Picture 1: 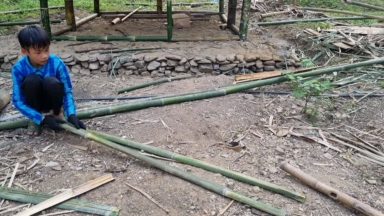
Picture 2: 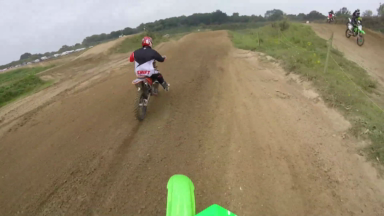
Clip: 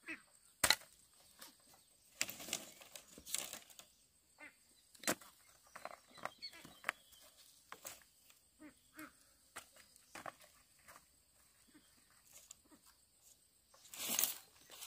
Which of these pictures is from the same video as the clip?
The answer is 1